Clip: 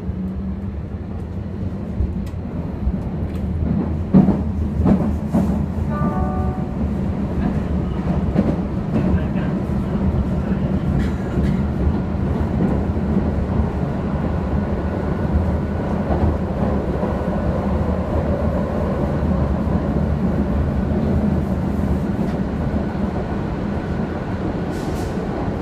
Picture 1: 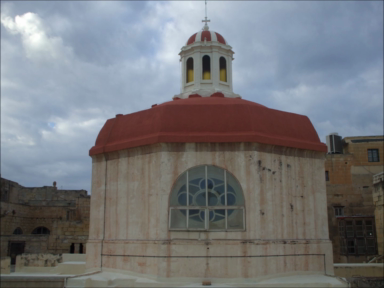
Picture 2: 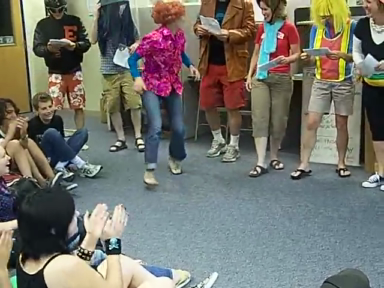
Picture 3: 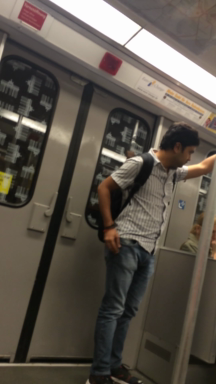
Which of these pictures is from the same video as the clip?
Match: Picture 3